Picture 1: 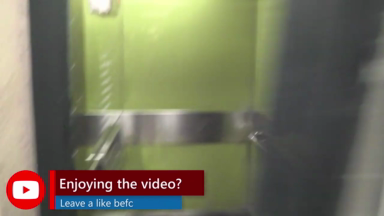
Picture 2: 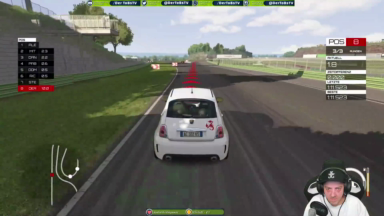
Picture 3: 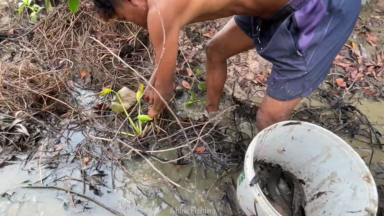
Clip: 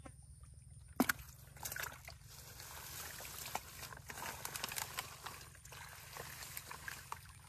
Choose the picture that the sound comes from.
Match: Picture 3